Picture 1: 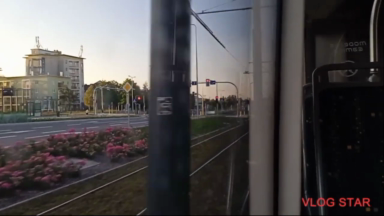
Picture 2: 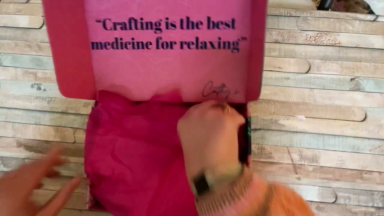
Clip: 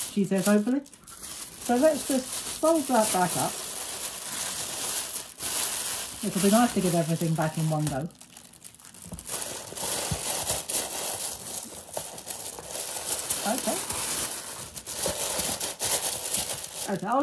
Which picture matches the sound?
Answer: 2